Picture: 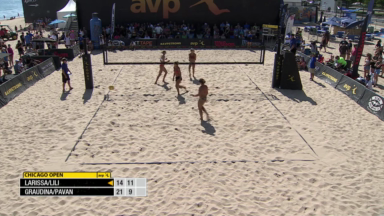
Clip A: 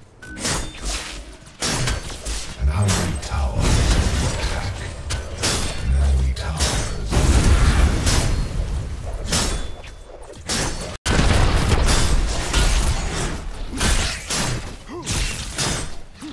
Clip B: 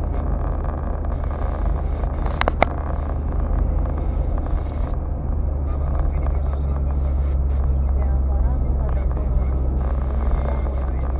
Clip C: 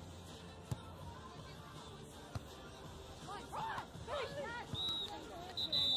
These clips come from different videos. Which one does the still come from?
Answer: C